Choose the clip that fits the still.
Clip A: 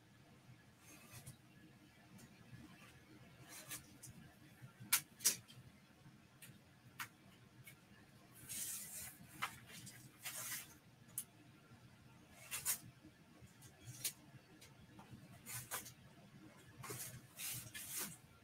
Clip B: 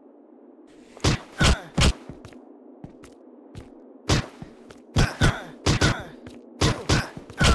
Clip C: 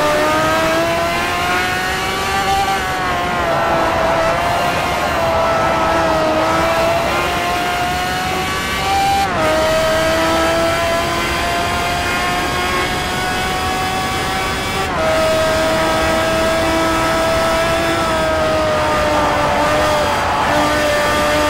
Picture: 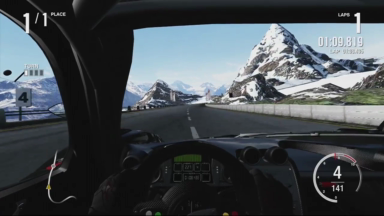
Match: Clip C